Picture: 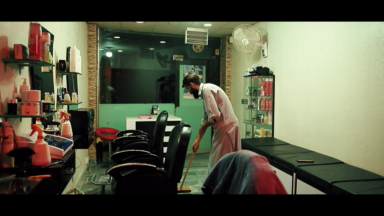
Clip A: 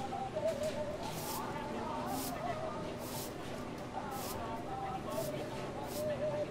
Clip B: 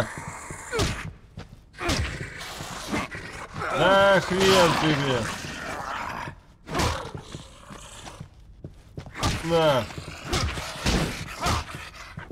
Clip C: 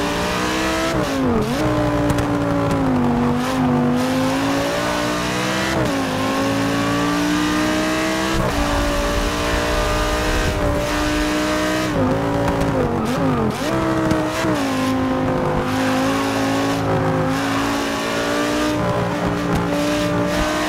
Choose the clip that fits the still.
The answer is A